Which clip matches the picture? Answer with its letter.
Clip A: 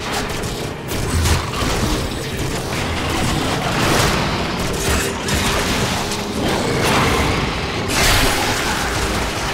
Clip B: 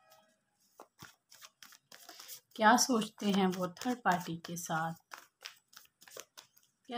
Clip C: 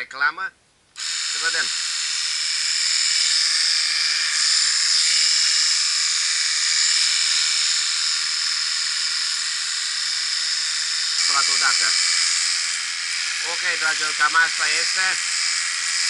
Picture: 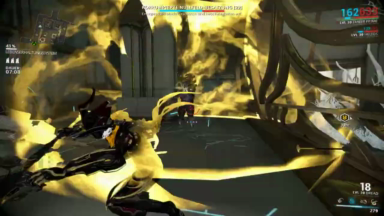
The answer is A